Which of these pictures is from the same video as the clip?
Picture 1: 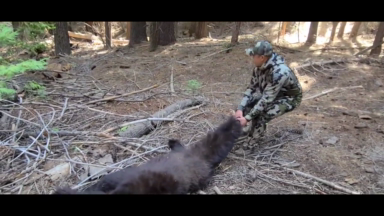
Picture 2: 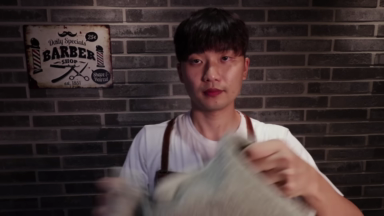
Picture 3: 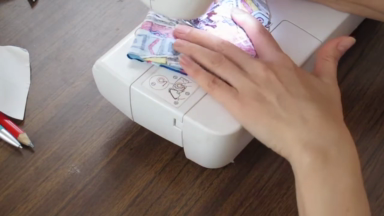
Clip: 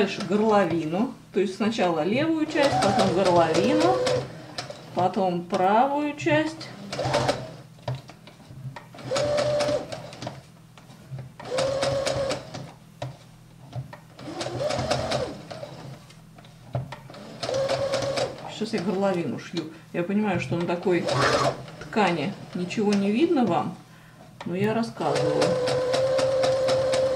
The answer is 3